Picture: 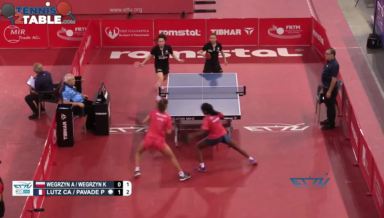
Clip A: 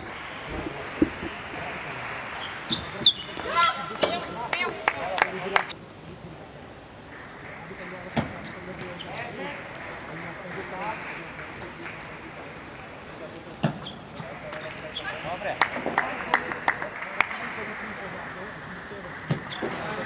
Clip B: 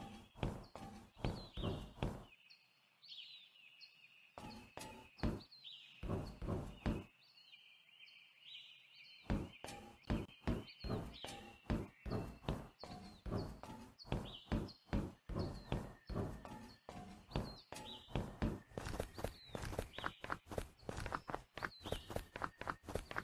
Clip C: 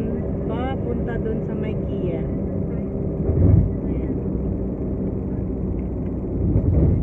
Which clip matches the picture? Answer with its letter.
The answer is A